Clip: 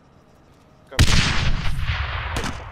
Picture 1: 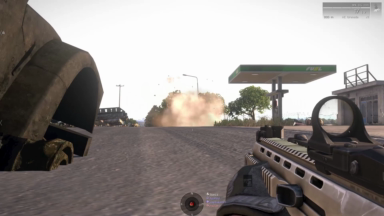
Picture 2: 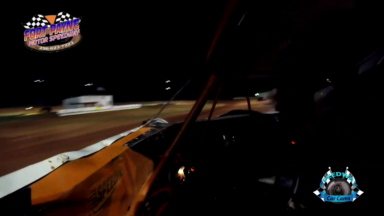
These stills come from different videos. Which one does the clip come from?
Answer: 1